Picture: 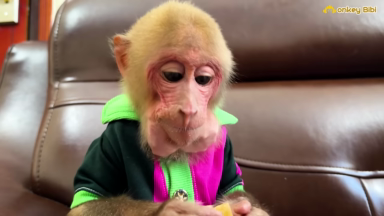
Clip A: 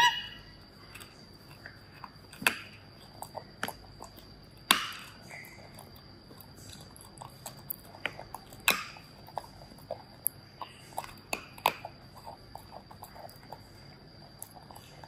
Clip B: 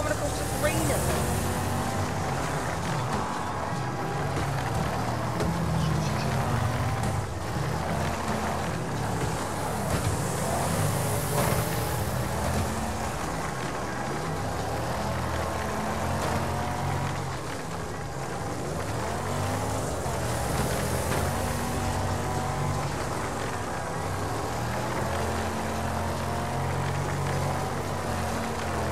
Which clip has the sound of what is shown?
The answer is A